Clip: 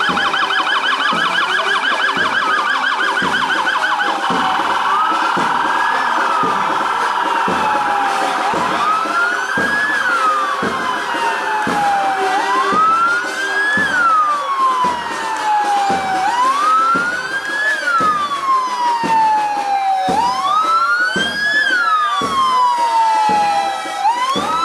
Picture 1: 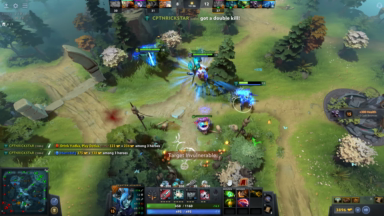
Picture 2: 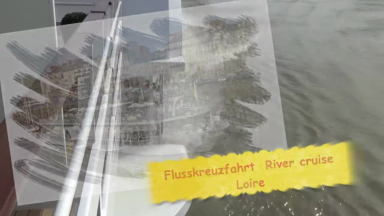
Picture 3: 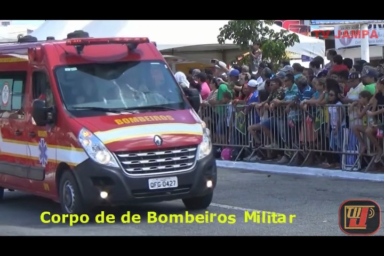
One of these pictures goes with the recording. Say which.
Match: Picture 3